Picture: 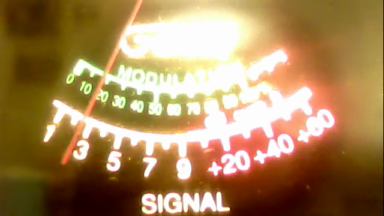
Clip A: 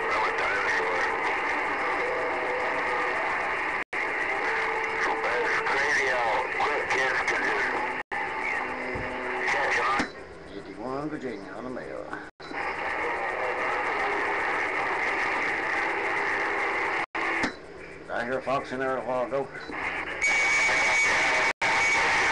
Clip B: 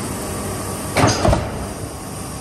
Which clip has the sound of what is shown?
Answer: A